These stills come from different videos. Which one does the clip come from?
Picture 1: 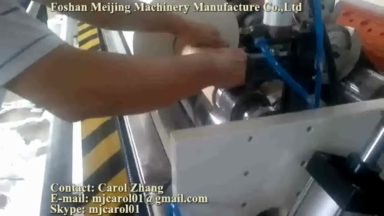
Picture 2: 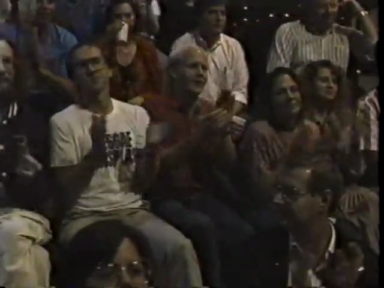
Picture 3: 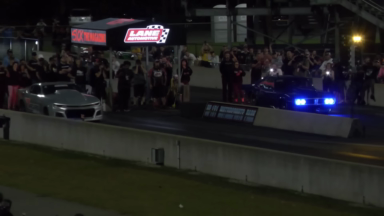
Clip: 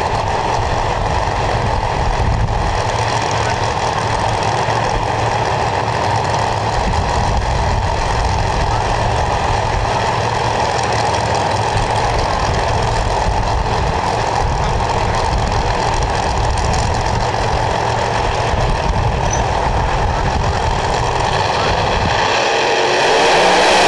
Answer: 3